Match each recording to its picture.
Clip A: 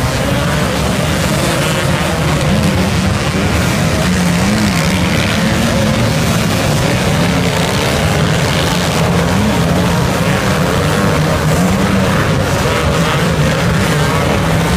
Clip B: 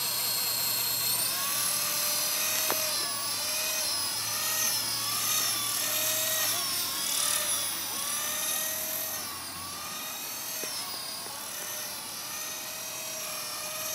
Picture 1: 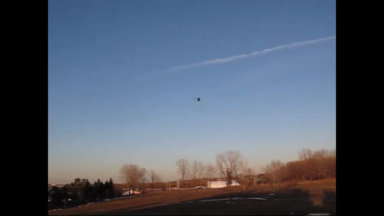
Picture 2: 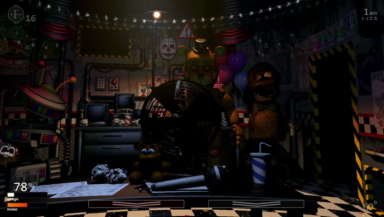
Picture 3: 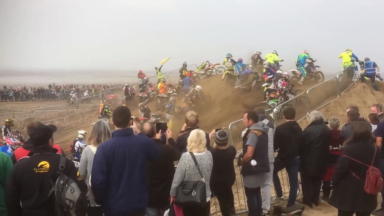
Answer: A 3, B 1